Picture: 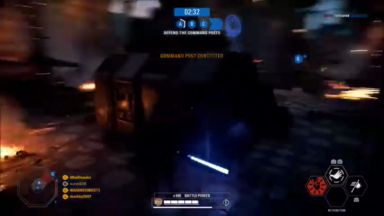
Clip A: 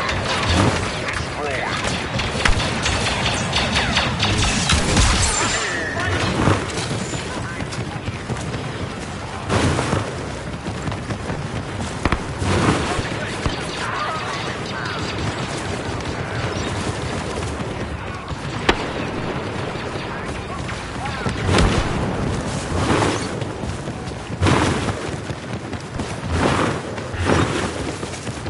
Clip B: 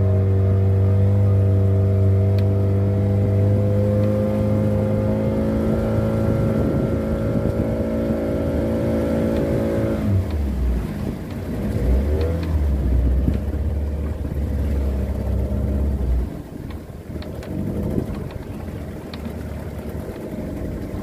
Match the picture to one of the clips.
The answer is A